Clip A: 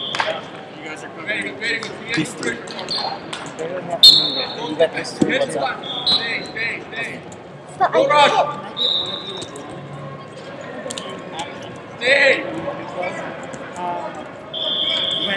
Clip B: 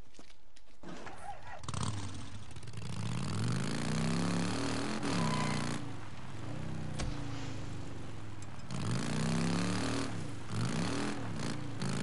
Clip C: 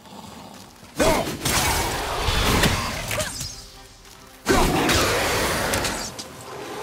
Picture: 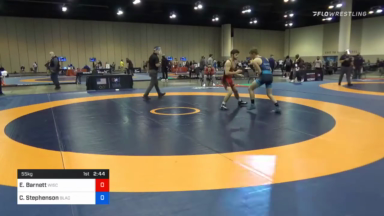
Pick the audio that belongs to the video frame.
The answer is A